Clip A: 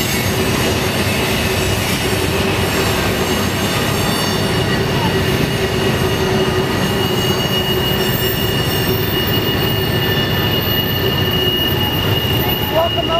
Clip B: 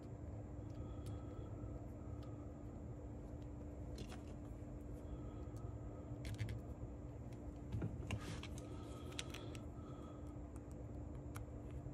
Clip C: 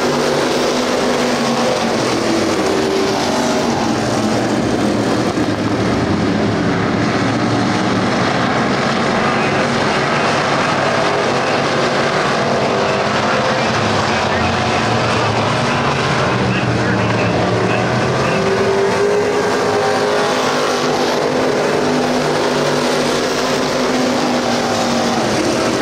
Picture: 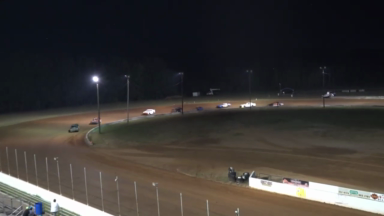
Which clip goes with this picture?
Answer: C